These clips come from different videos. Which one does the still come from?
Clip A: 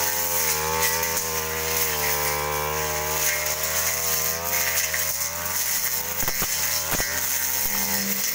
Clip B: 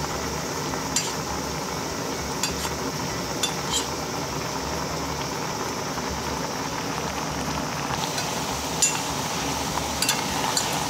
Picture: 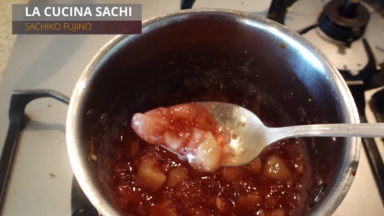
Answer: B